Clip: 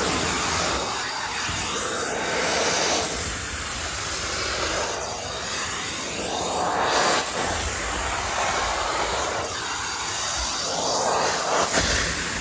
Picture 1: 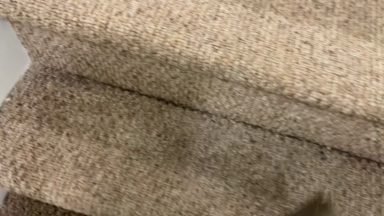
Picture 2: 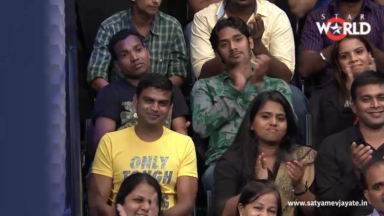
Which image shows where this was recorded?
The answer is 1